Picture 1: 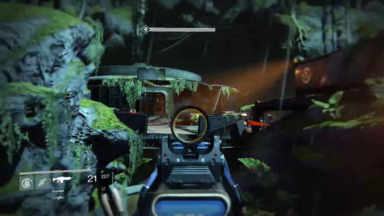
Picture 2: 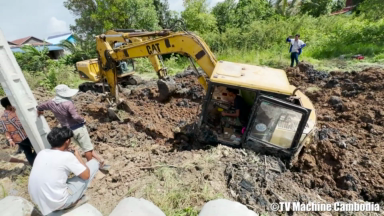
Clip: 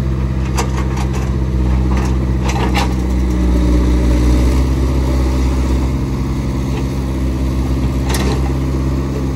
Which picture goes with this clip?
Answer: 2